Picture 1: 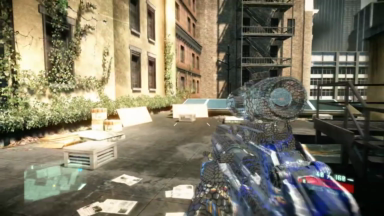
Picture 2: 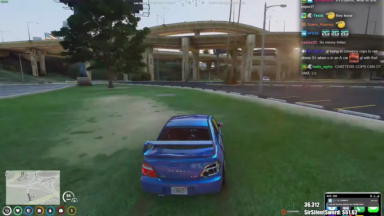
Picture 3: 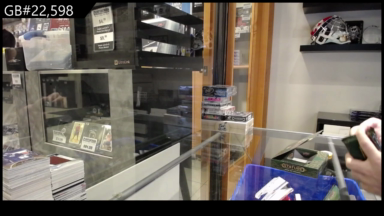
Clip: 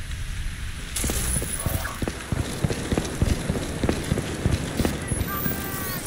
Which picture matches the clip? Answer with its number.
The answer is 1